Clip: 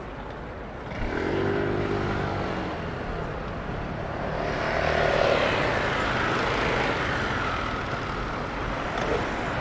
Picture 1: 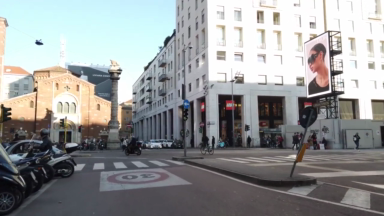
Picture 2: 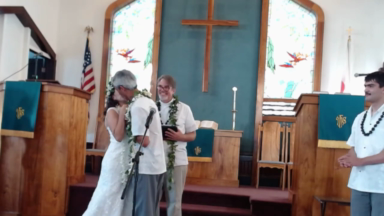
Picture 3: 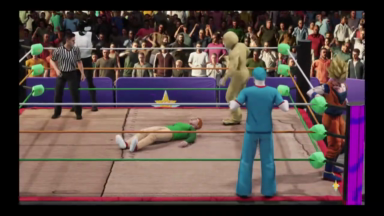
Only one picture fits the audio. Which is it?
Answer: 1